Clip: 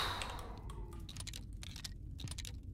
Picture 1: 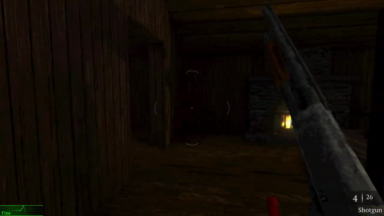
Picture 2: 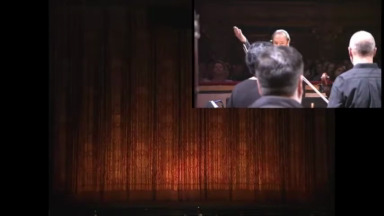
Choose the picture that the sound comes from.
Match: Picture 1